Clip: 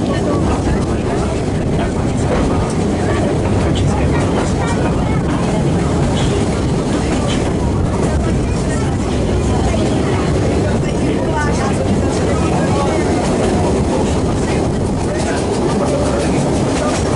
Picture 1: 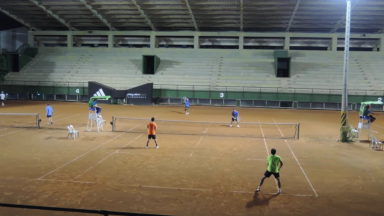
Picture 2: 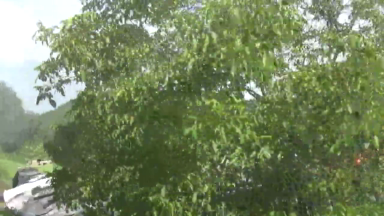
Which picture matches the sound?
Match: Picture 2